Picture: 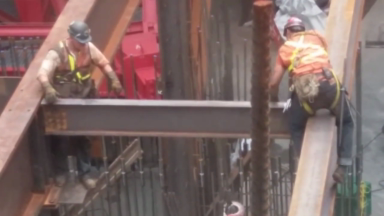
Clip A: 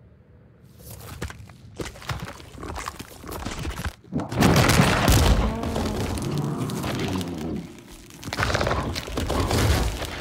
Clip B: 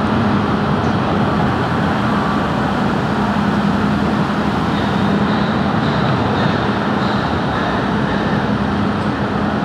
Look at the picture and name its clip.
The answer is B